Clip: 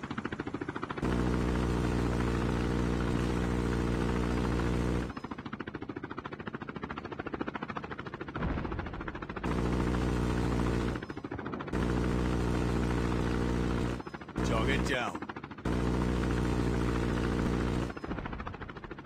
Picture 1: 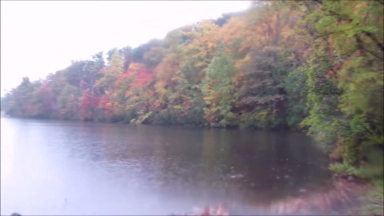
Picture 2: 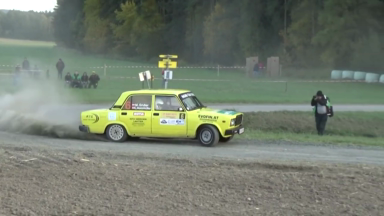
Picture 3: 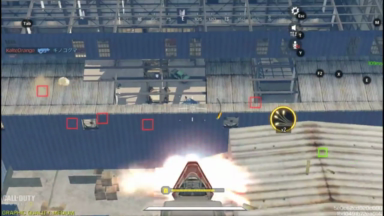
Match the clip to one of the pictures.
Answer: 3